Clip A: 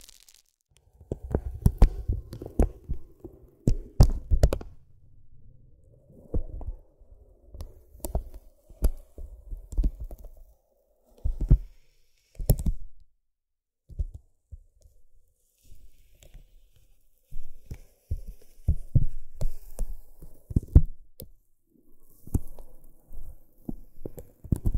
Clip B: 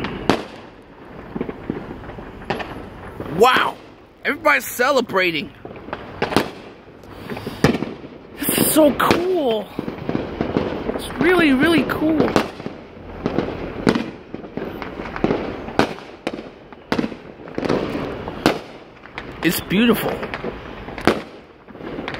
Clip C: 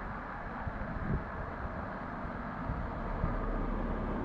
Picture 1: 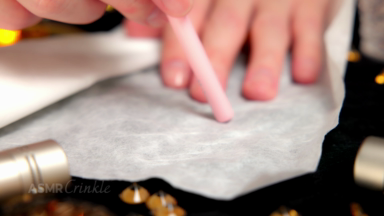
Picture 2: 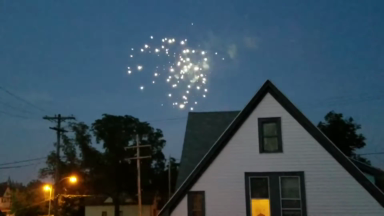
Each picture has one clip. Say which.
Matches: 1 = A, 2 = B